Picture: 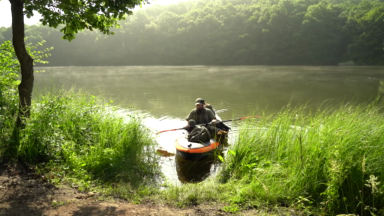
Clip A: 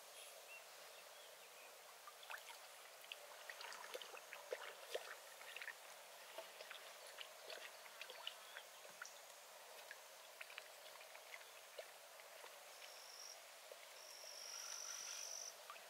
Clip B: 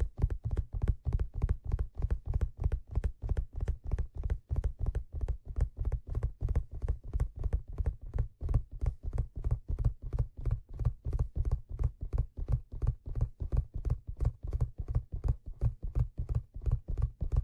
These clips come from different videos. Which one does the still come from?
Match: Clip A